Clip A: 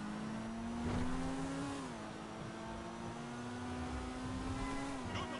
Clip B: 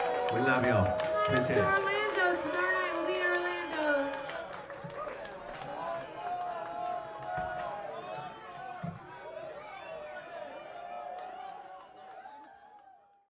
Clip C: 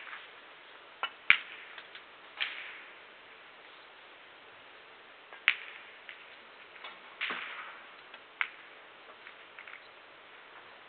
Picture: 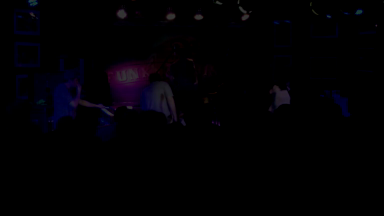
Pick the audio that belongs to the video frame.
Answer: B